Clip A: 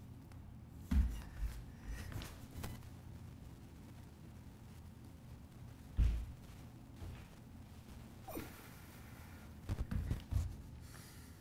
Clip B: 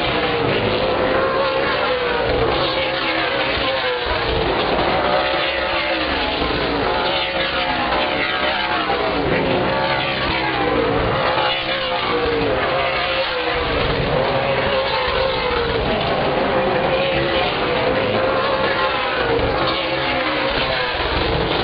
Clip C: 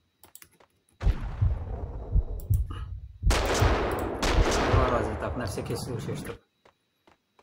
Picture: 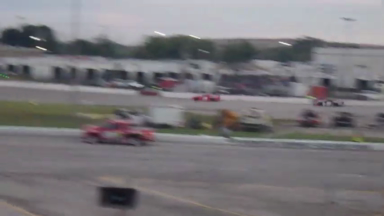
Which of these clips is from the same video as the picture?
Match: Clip B